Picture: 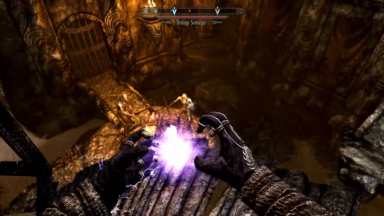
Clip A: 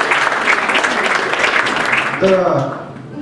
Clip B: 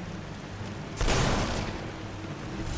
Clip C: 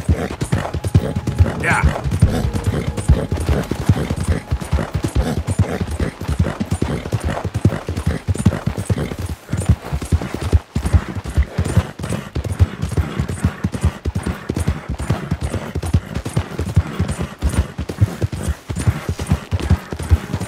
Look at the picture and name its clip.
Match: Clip B